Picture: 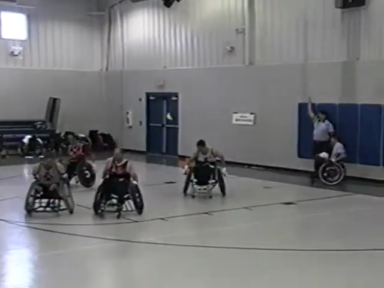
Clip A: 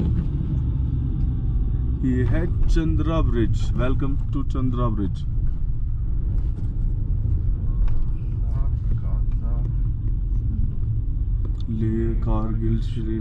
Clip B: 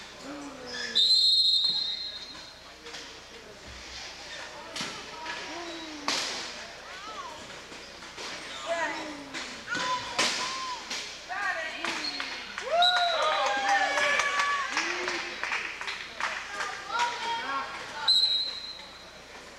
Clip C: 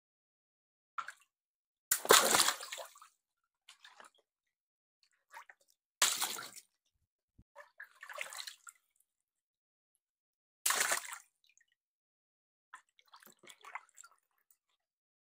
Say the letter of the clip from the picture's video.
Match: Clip B